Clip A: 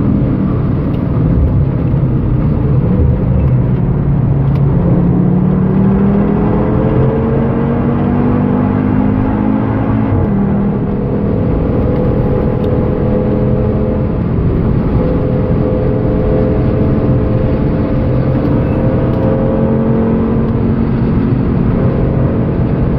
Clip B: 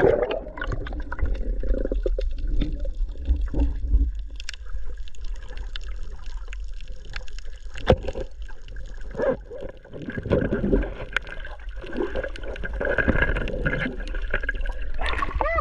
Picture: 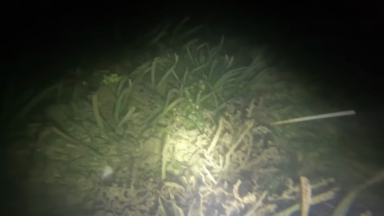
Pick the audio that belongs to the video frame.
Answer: B